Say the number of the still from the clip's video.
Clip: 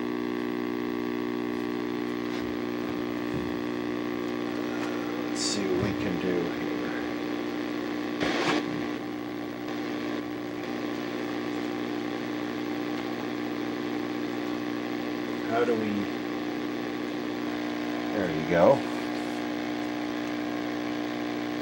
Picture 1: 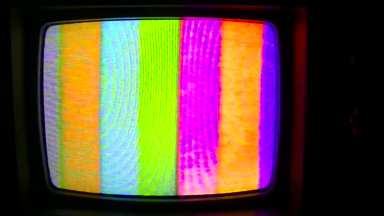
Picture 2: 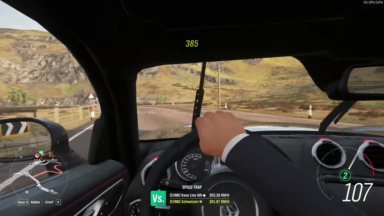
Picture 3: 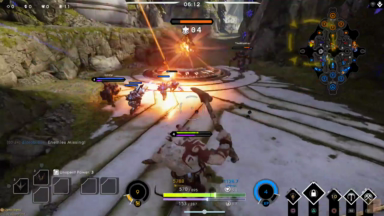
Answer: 1